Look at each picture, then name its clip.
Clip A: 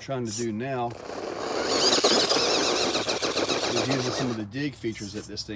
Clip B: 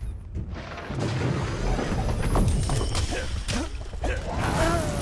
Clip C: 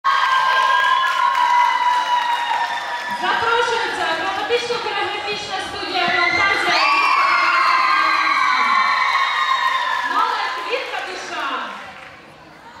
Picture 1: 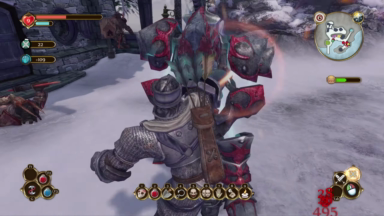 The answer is B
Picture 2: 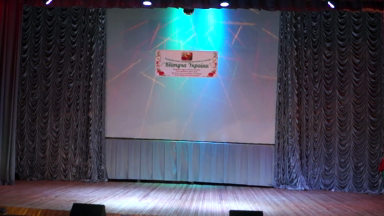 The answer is C